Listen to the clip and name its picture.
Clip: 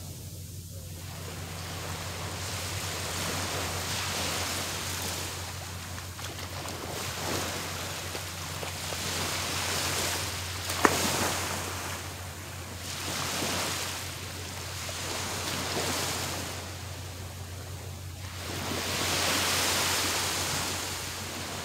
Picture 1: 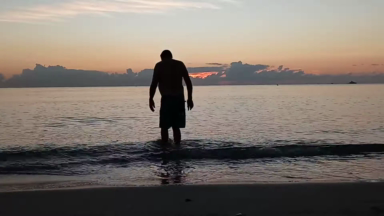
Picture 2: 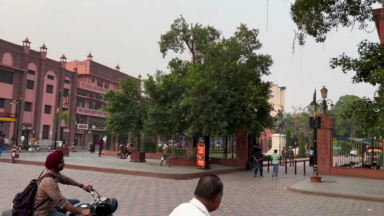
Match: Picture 1